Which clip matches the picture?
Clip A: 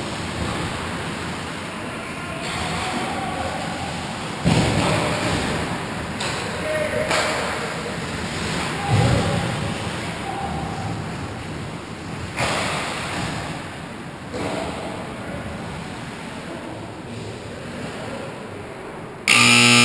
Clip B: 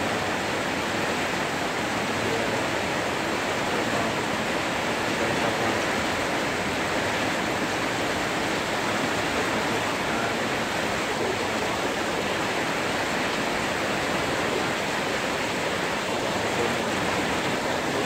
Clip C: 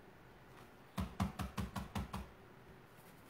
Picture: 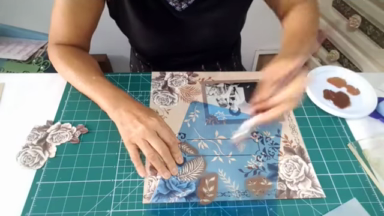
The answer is C